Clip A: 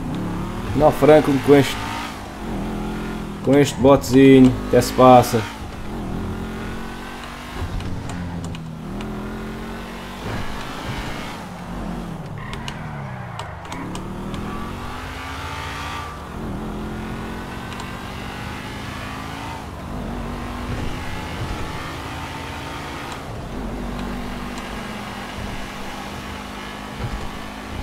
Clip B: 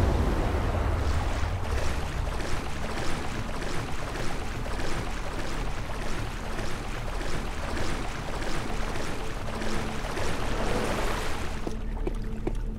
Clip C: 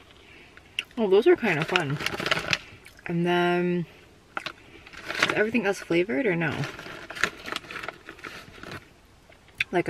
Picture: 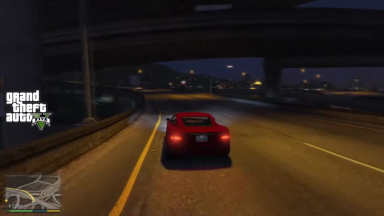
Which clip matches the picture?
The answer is A